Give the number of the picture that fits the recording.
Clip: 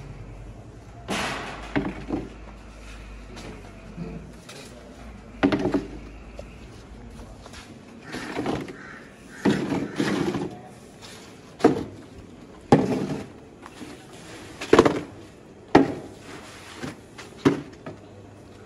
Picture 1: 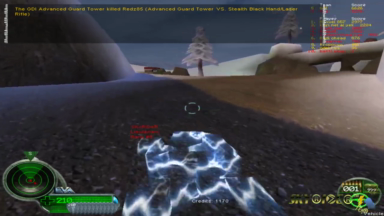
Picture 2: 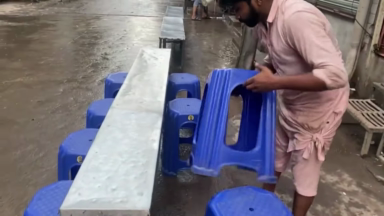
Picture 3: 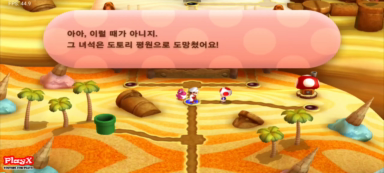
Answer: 2